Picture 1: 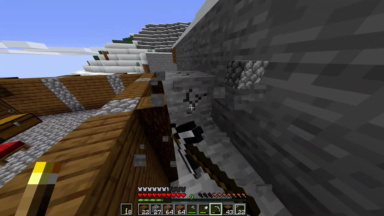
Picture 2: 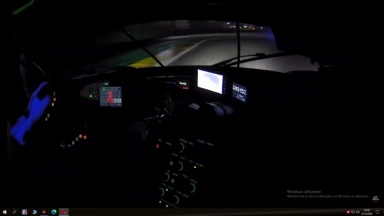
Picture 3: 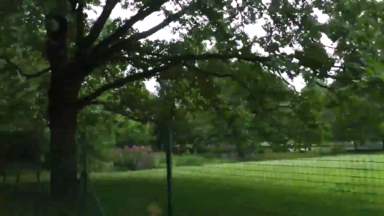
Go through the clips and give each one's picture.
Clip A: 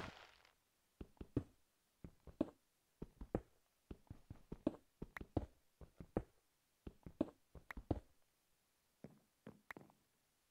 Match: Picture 1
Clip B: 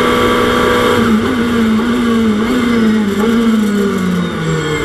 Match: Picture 2